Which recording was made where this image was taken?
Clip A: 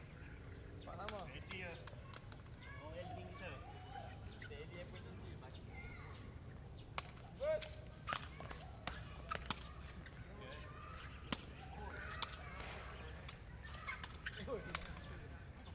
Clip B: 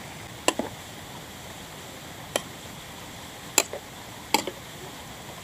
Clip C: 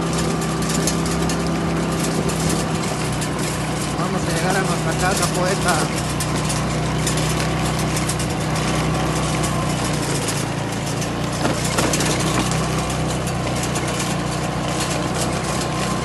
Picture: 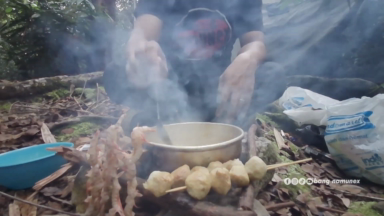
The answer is B